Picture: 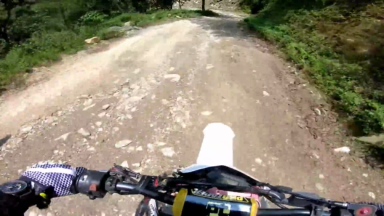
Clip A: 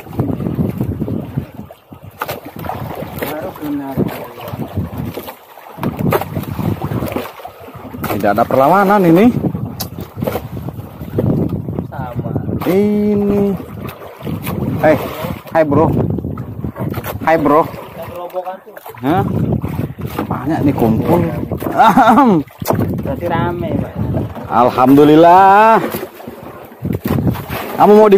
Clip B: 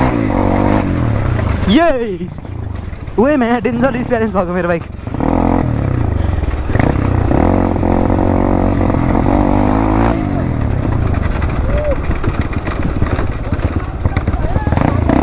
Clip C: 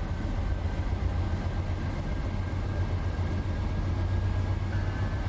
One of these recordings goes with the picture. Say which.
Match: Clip B